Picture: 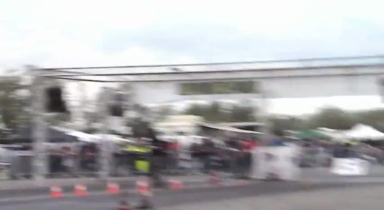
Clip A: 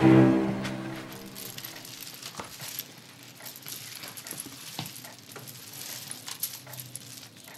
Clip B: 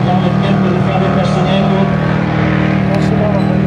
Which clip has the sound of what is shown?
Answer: B